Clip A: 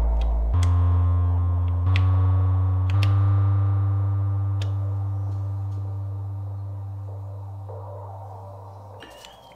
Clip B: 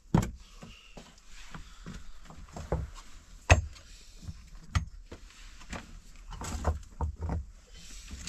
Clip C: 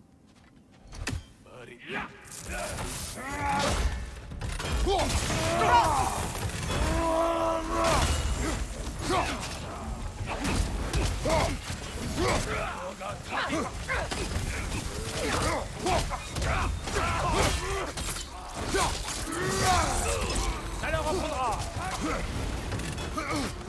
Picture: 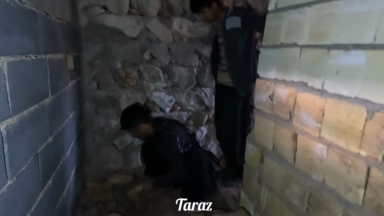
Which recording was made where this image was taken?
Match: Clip B